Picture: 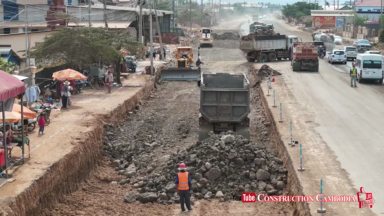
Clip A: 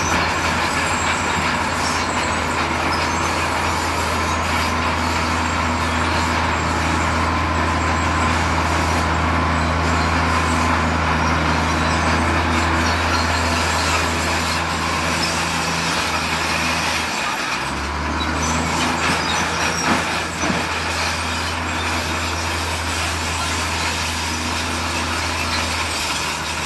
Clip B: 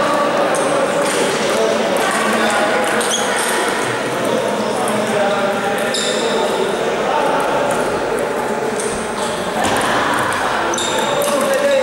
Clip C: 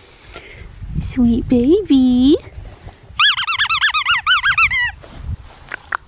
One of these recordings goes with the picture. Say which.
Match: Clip A